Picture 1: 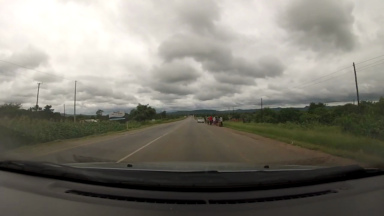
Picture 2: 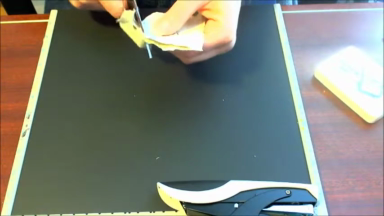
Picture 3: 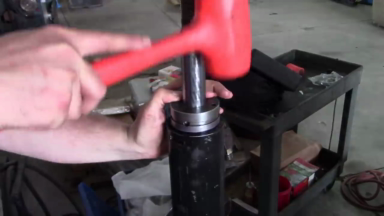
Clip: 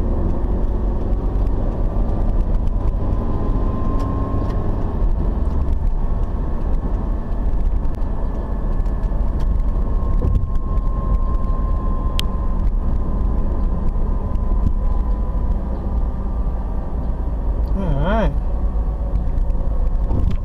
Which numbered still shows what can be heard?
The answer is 1